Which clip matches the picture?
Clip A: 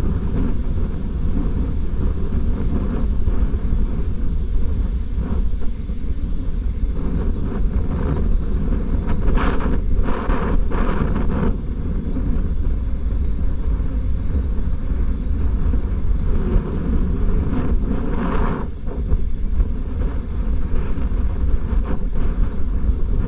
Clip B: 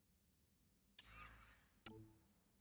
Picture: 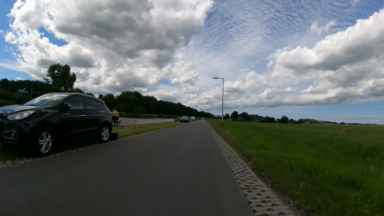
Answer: A